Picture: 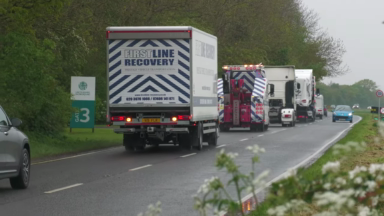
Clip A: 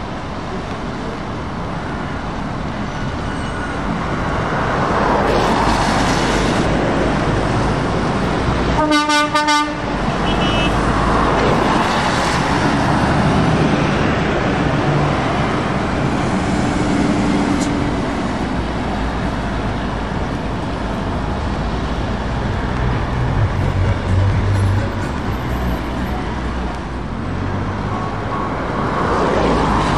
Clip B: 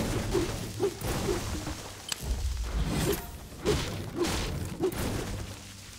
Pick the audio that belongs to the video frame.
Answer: A